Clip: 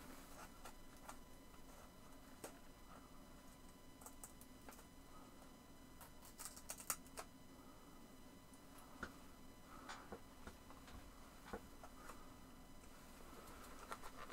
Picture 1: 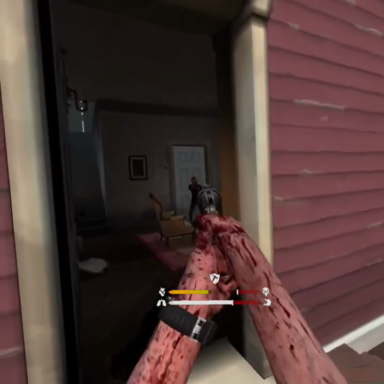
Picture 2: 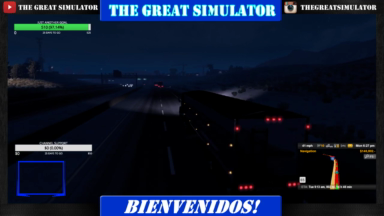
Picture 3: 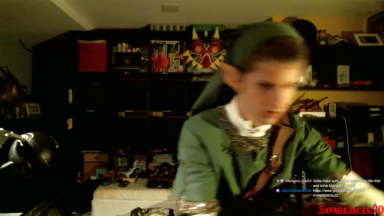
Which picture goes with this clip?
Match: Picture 3